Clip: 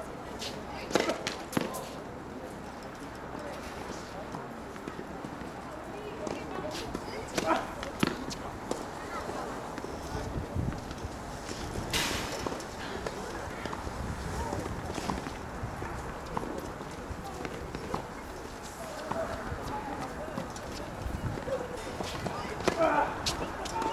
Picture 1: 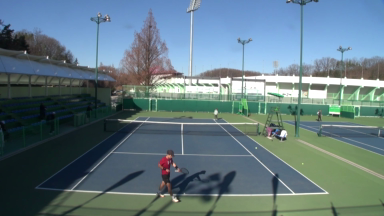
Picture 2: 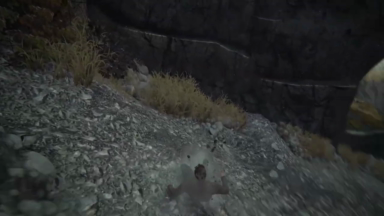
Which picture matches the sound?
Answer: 1